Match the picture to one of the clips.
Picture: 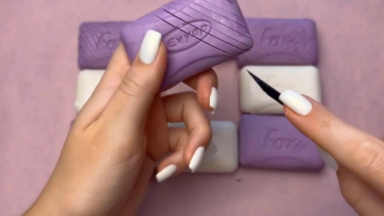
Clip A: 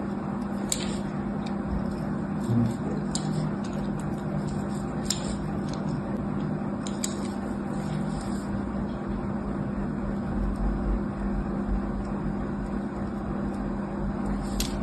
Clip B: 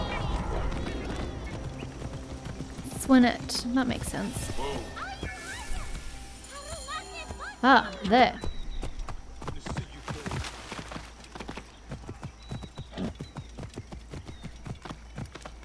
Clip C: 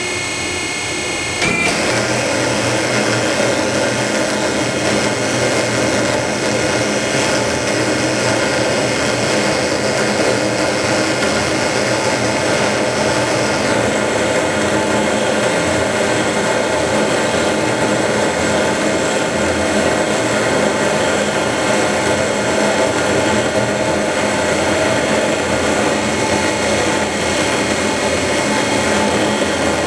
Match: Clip A